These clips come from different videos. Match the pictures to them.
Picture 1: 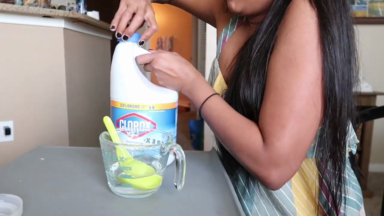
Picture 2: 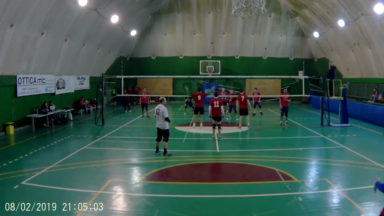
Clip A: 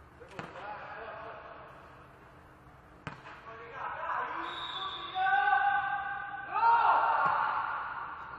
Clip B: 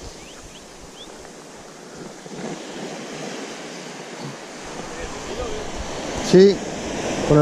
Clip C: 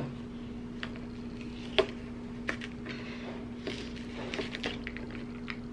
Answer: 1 C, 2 A